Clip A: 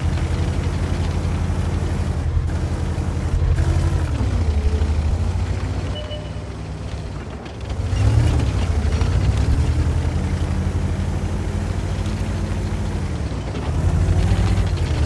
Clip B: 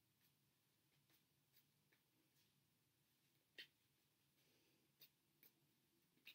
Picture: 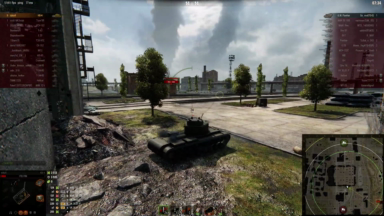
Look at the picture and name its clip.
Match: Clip A